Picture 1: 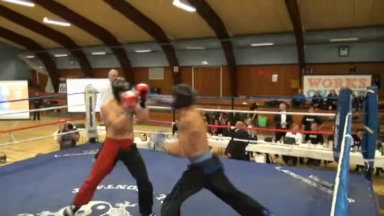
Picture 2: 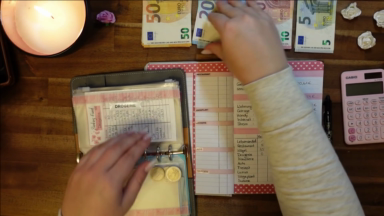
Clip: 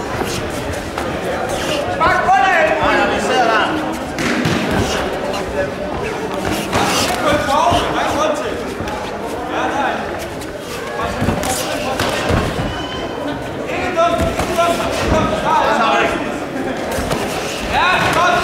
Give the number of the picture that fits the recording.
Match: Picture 1